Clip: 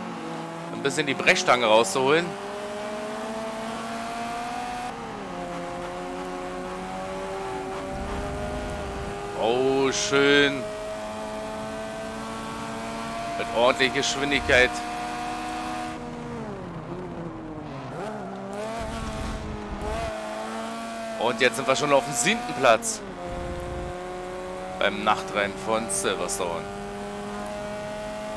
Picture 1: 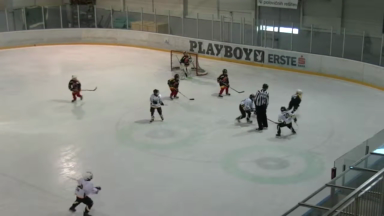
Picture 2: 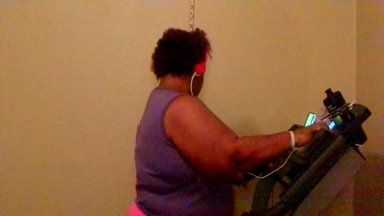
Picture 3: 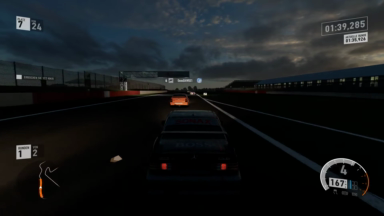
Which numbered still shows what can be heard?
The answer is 3